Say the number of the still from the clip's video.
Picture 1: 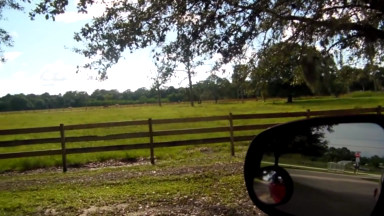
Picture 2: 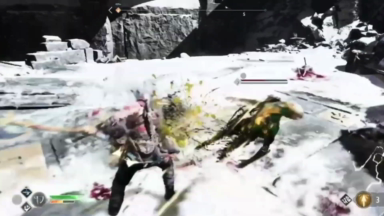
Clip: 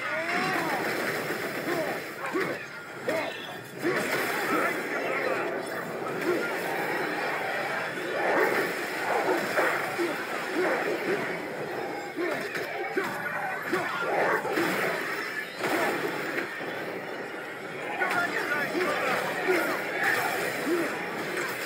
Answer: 2